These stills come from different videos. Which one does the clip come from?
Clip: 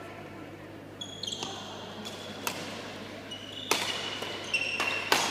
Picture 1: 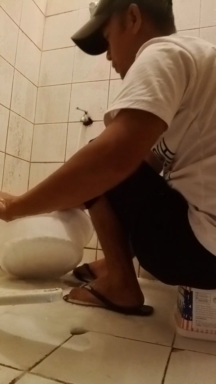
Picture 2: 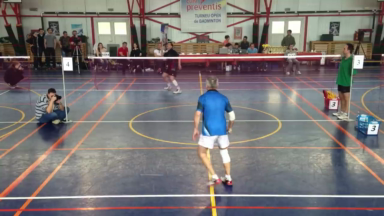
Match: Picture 2